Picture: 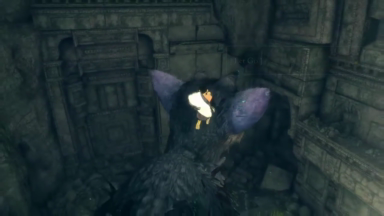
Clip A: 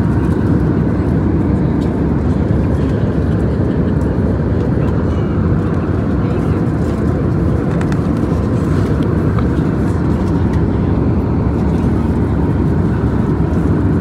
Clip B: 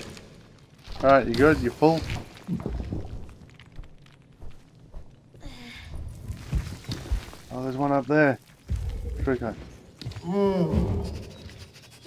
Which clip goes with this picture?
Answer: B